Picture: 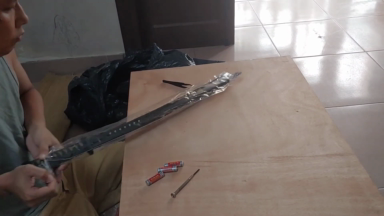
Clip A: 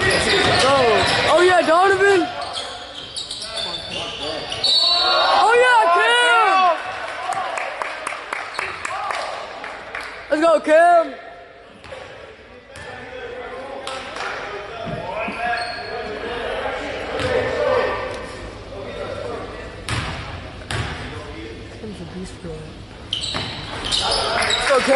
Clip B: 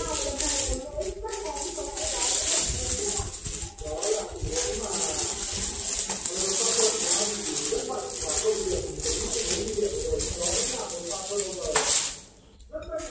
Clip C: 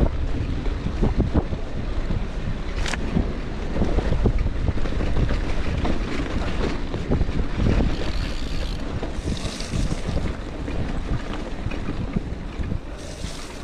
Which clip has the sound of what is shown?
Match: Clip B